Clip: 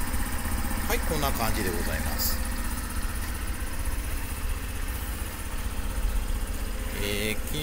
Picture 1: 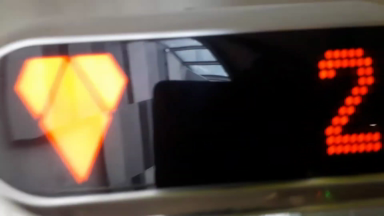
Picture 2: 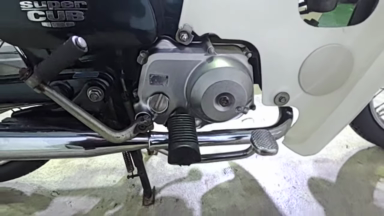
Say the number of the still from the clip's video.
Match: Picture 2